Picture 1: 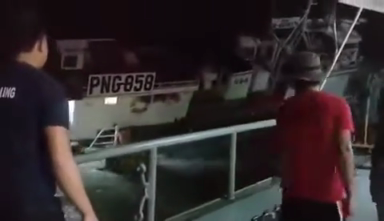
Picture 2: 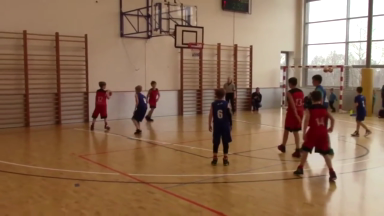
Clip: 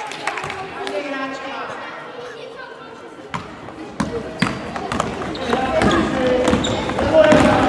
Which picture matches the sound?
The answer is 2